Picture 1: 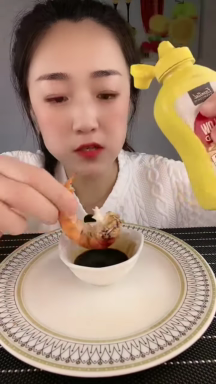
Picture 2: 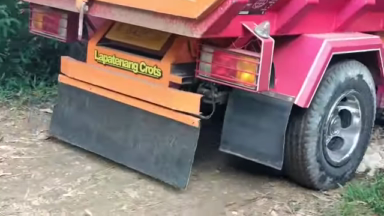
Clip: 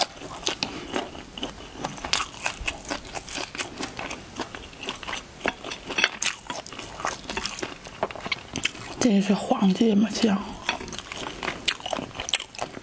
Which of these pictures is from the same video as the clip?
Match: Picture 1